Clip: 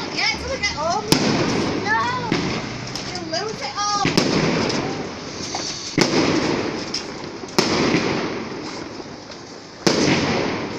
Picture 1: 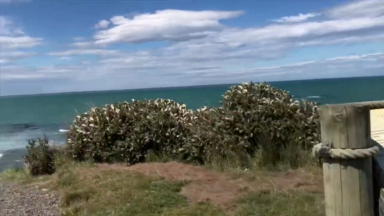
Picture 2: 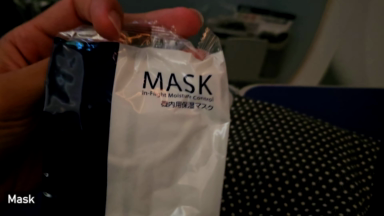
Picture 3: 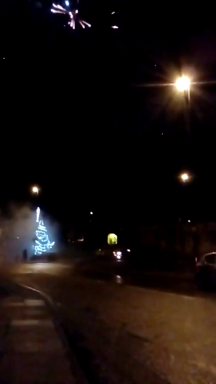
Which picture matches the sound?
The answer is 3